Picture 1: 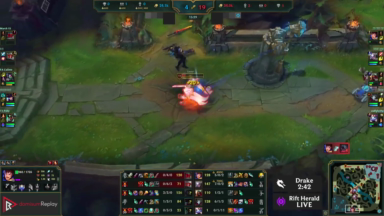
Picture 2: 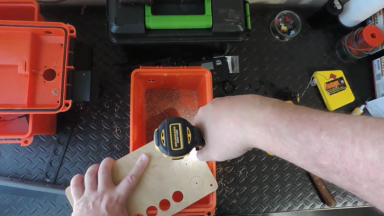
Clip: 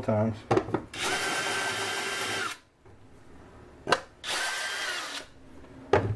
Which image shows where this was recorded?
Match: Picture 2